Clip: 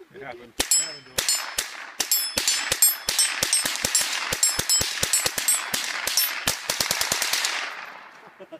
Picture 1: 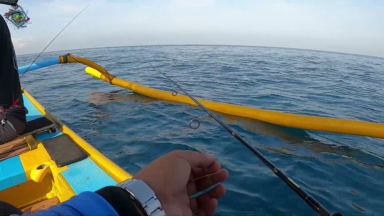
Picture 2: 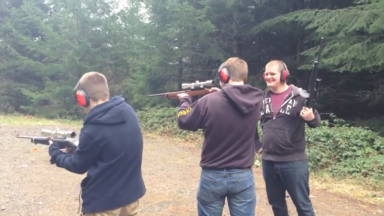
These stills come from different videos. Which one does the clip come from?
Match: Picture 2